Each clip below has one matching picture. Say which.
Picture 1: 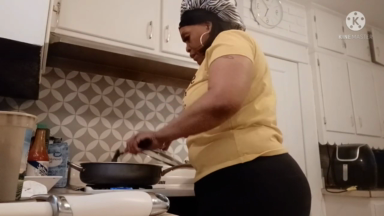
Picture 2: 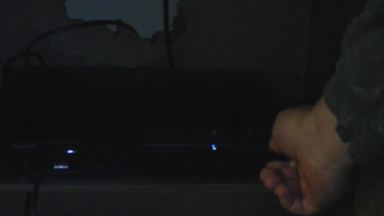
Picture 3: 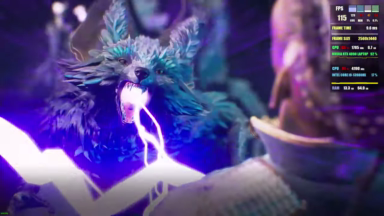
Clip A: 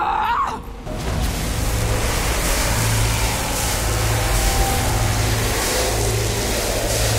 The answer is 3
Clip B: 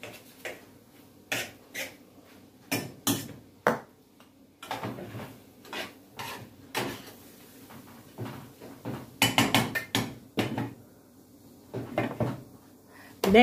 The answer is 1